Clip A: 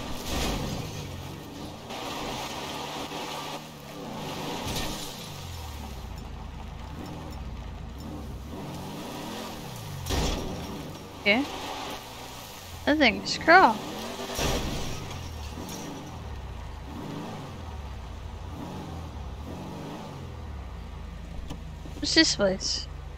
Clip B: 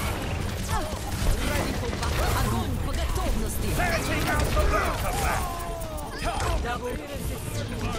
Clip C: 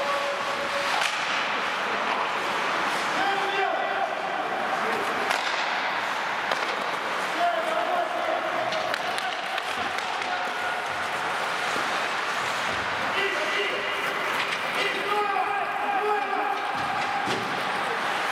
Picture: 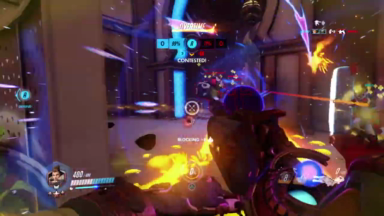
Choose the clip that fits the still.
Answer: B